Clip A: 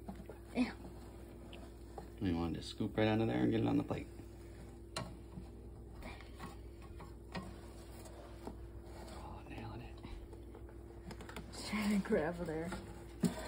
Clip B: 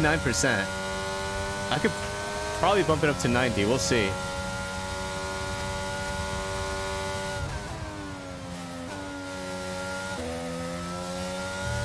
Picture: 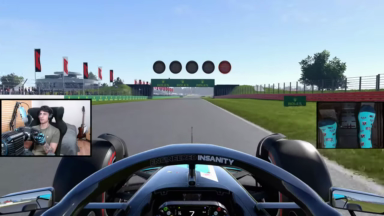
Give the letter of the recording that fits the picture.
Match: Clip B